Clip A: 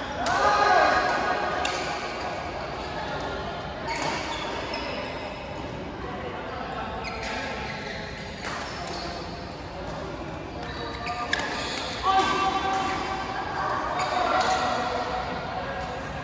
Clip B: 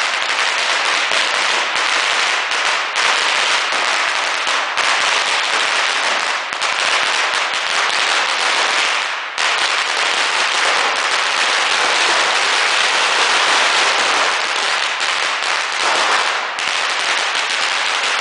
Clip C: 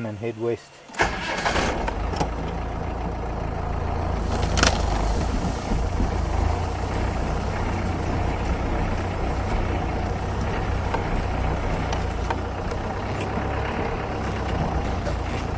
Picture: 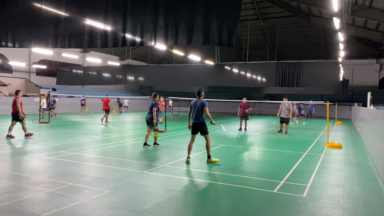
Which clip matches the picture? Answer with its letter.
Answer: A